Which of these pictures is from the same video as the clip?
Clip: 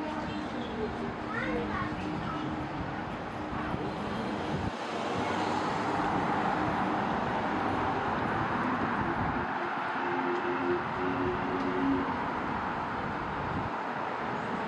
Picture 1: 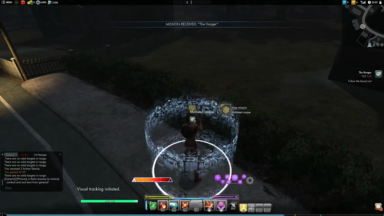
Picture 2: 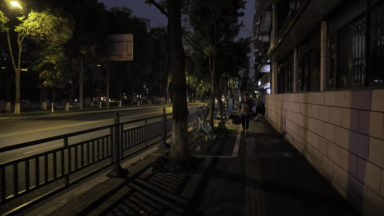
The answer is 2